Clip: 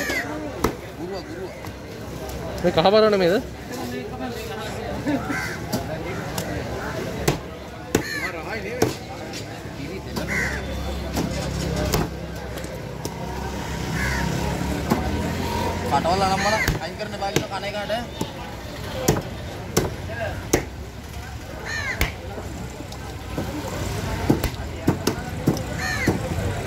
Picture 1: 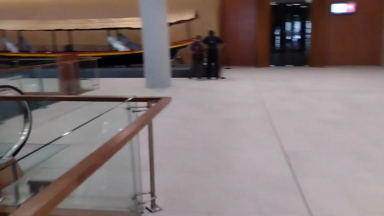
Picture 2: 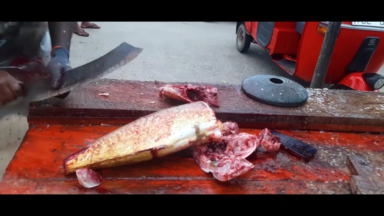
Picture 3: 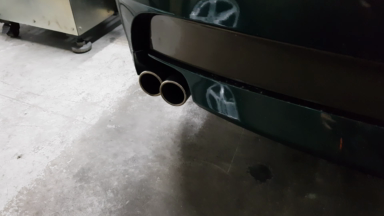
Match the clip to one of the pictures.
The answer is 2